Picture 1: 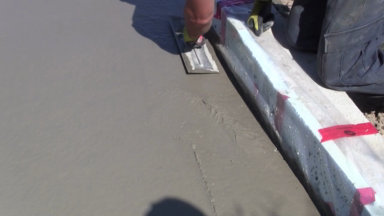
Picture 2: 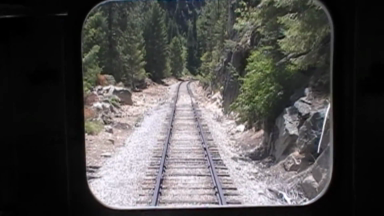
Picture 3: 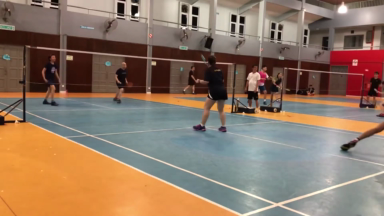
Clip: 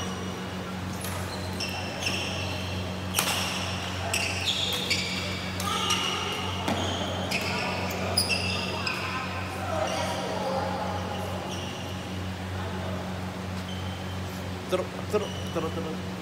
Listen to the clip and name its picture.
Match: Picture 3